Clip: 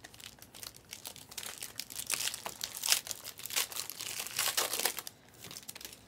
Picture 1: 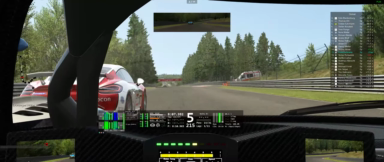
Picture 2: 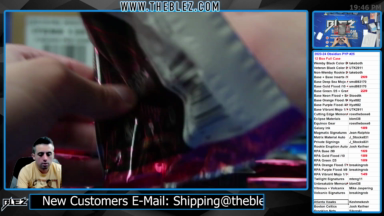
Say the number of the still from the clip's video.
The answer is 2